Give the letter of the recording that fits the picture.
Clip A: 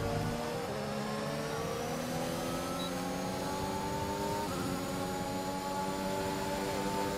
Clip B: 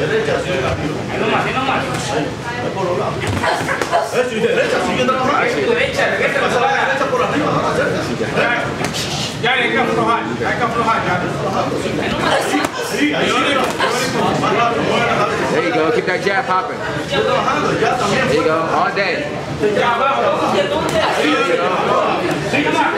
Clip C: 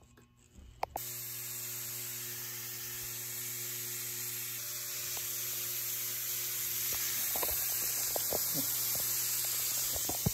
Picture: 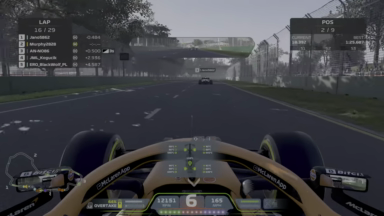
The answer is A